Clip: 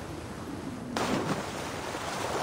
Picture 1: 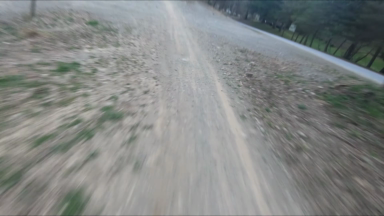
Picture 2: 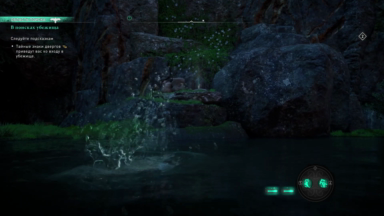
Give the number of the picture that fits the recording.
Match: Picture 2